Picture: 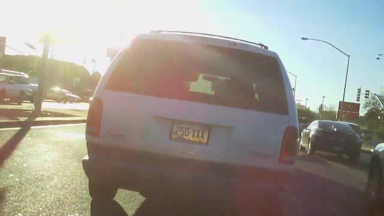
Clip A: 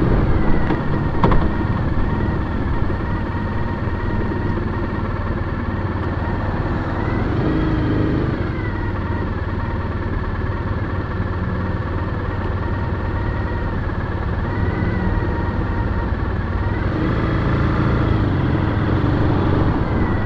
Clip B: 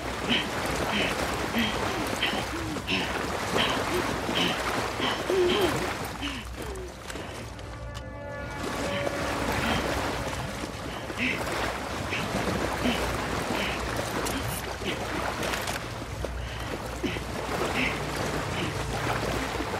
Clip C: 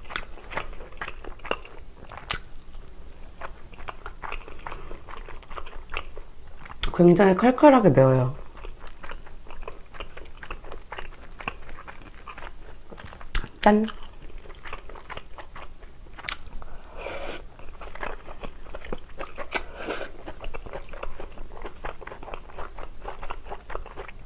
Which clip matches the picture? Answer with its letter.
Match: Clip A